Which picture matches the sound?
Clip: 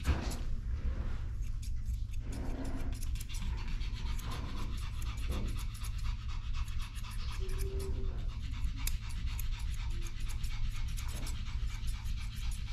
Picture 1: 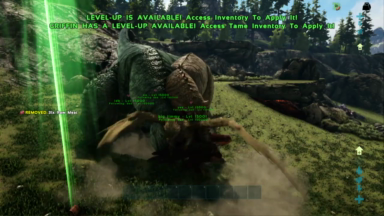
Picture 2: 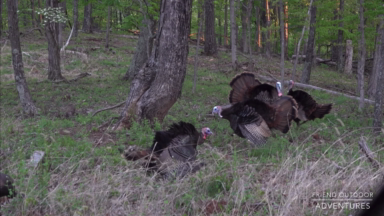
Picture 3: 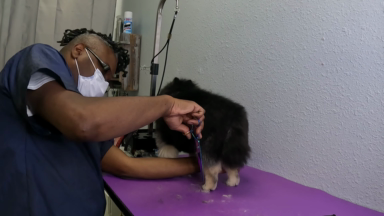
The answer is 3